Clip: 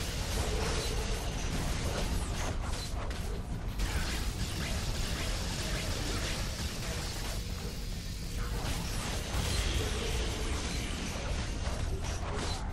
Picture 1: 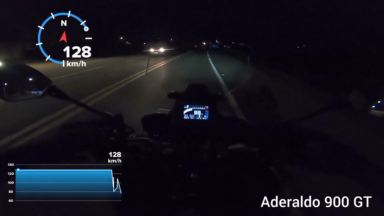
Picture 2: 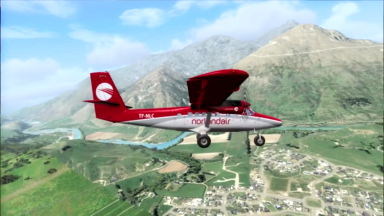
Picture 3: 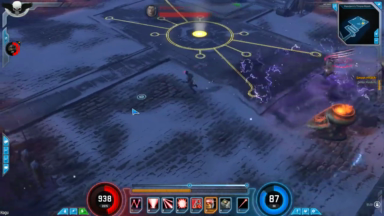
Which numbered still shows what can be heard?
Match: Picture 3